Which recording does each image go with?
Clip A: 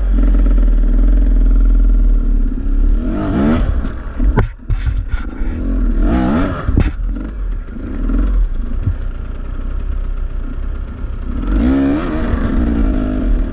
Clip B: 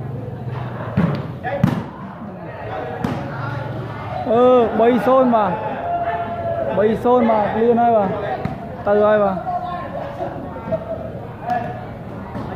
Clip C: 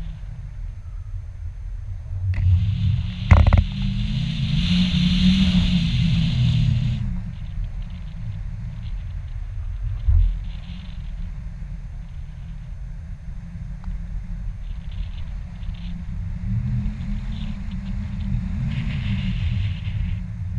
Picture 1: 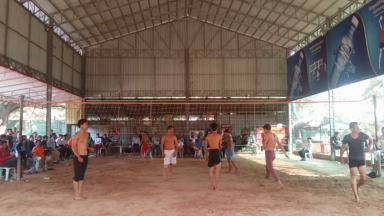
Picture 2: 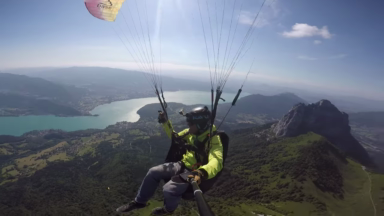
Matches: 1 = B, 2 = C